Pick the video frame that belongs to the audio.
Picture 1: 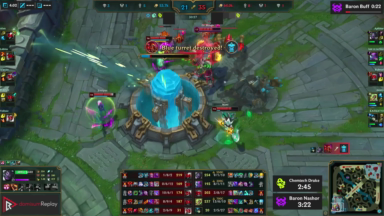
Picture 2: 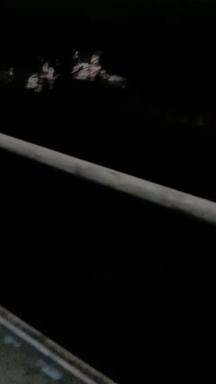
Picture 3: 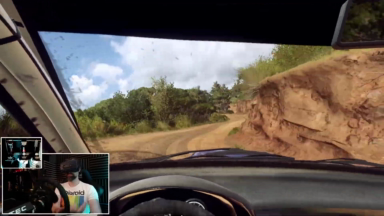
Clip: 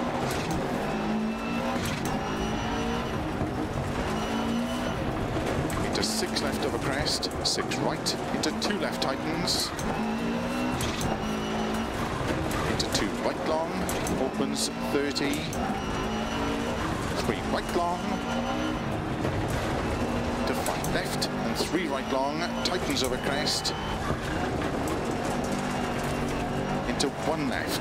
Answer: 3